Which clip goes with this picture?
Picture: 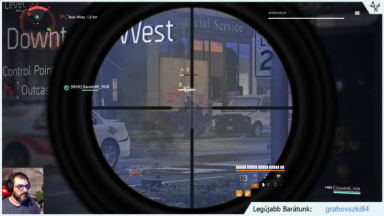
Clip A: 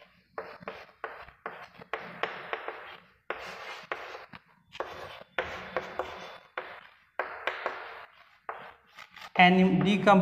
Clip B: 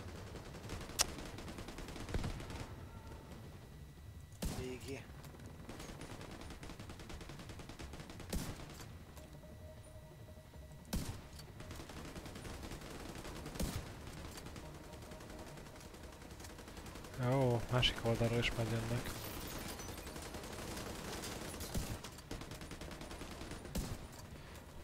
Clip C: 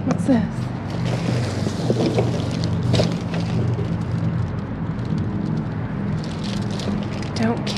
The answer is B